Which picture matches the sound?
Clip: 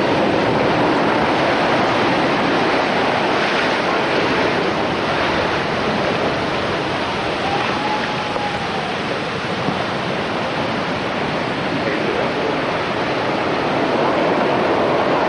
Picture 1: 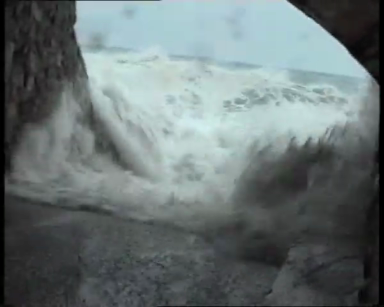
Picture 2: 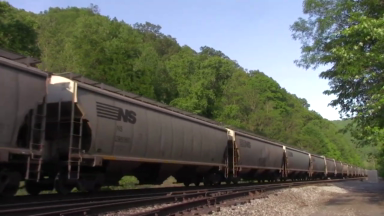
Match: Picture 1